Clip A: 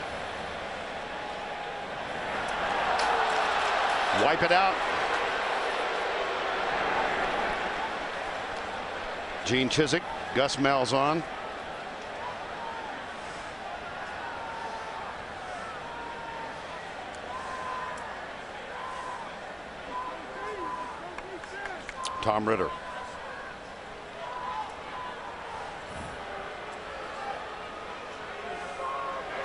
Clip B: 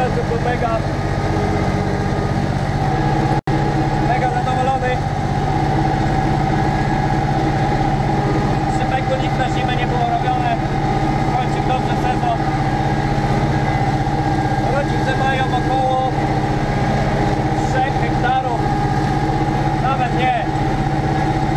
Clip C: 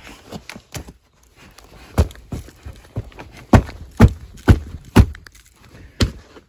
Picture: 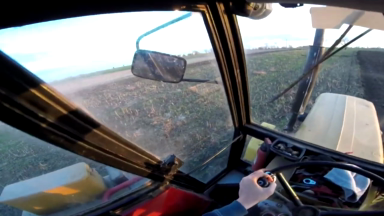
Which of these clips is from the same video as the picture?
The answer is B